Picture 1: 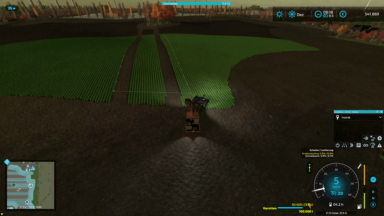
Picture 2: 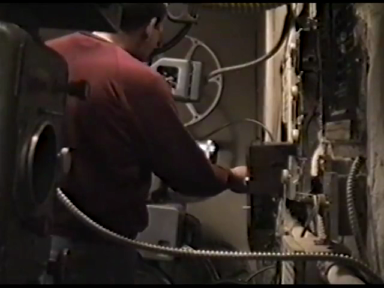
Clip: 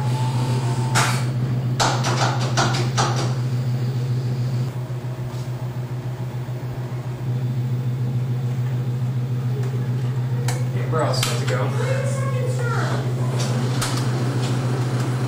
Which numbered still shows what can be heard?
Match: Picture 2